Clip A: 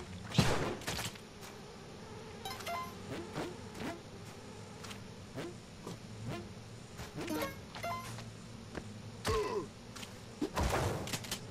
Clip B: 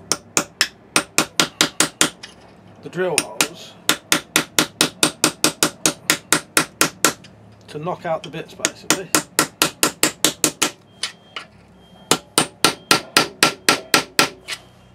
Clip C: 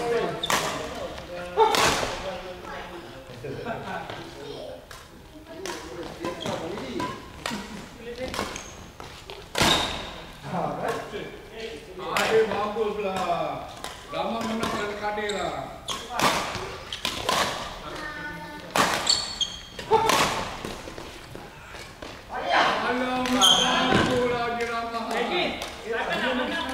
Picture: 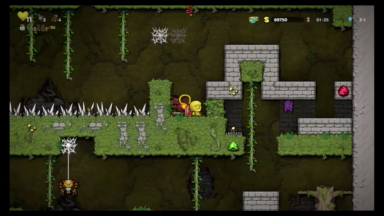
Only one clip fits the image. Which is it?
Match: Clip A